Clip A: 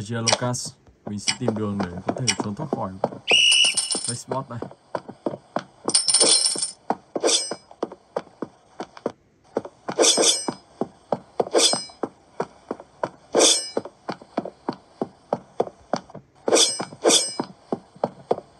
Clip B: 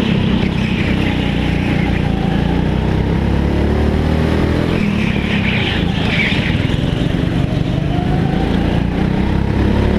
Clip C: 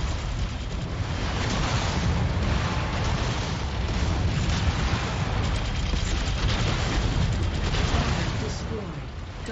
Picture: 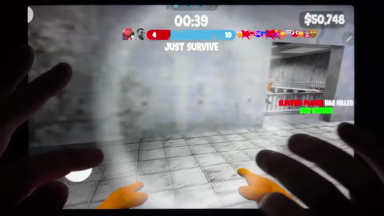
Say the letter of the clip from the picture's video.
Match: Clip A